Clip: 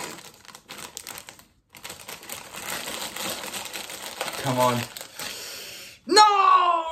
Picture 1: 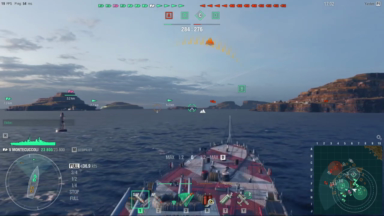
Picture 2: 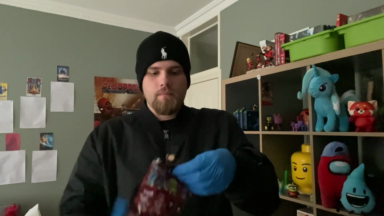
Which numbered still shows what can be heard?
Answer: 2